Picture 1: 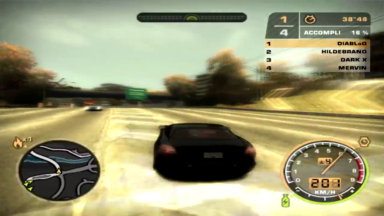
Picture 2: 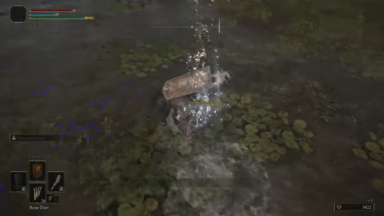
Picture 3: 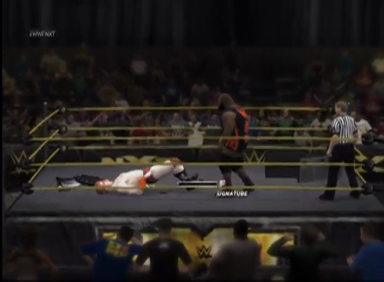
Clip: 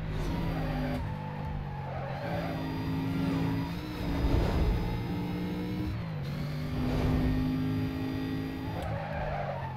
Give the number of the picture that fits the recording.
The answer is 1